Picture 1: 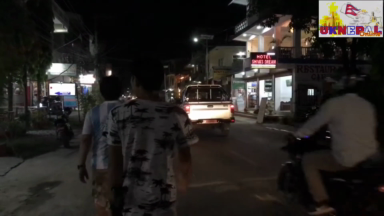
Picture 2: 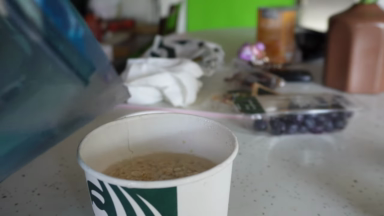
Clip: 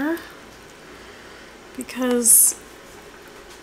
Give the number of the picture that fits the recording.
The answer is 2